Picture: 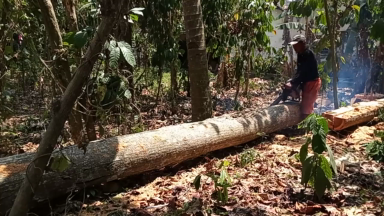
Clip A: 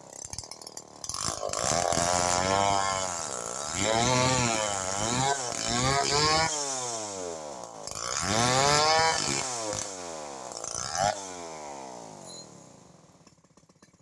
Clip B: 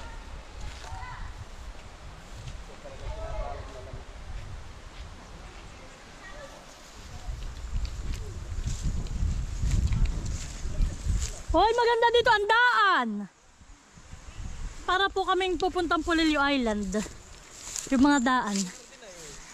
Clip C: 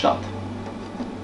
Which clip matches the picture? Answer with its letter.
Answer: A